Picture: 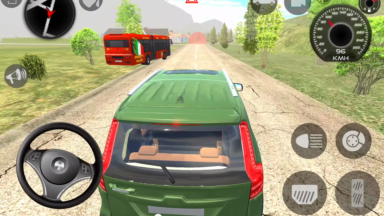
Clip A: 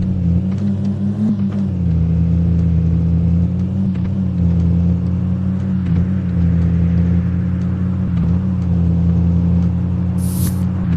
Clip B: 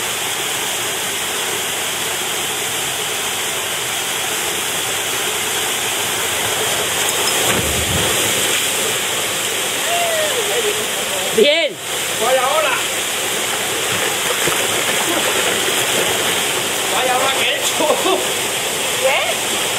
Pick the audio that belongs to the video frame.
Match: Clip A